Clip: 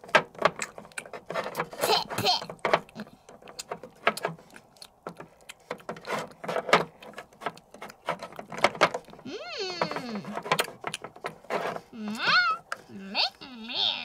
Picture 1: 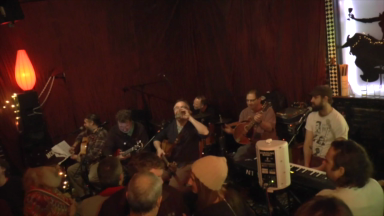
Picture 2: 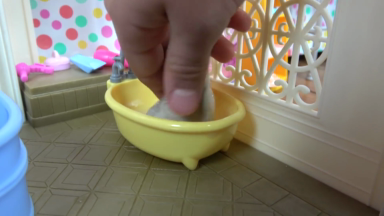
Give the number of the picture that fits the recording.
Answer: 2